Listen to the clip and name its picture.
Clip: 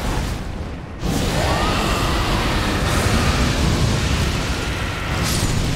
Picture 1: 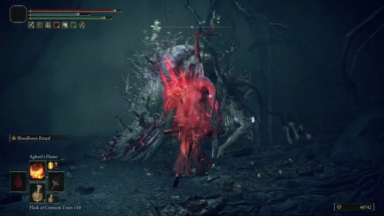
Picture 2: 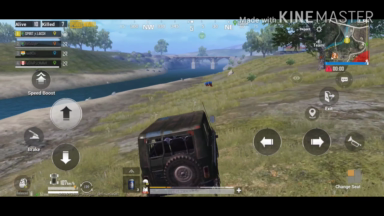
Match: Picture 1